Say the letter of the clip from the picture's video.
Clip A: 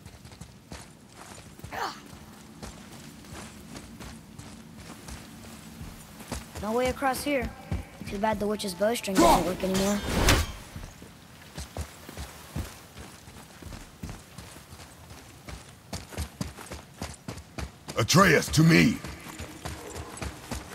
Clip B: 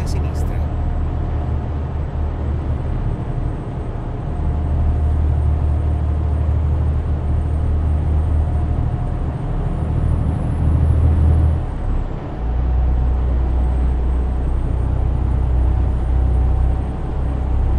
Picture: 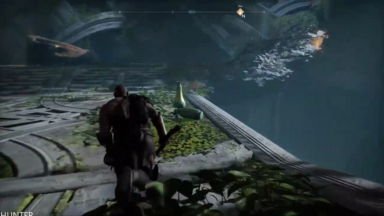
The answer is A